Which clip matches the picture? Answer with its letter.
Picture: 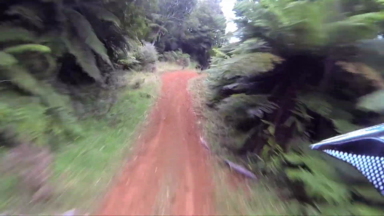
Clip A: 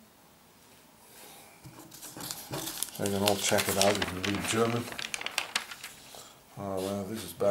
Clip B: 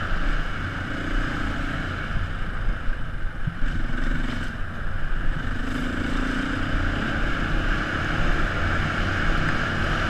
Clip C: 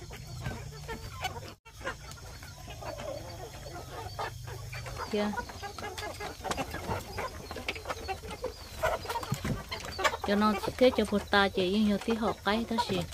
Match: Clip B